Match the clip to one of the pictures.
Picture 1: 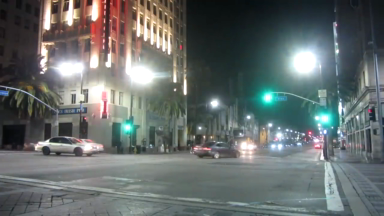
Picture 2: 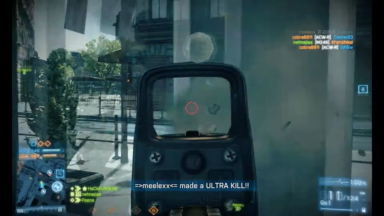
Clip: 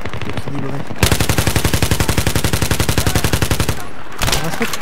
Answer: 2